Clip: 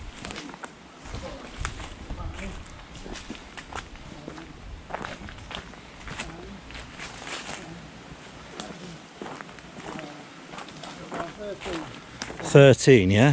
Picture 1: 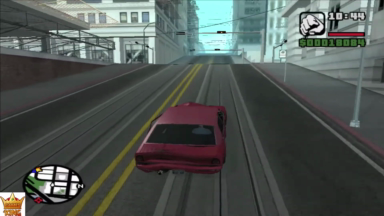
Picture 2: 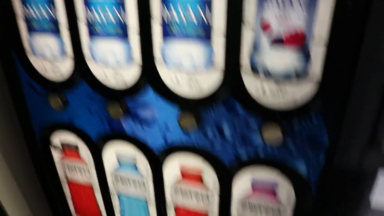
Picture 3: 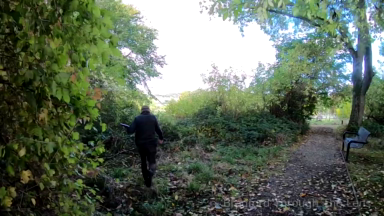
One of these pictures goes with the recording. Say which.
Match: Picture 3